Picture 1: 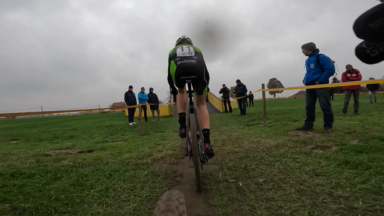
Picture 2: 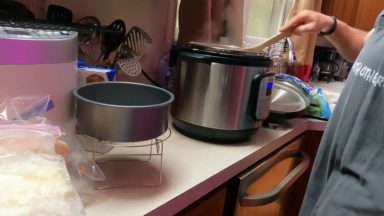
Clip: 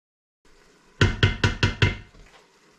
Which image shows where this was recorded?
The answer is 2